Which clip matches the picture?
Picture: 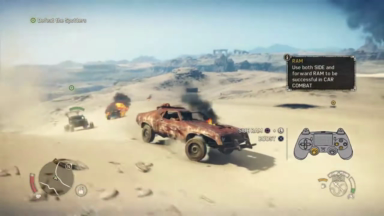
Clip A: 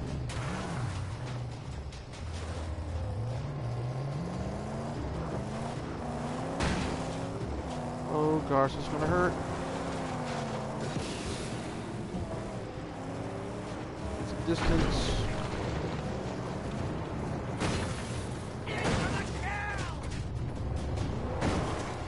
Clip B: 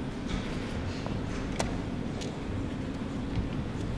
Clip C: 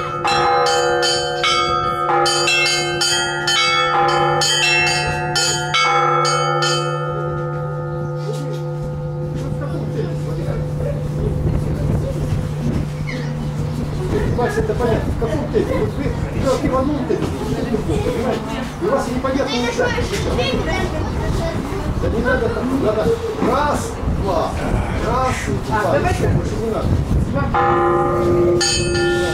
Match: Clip A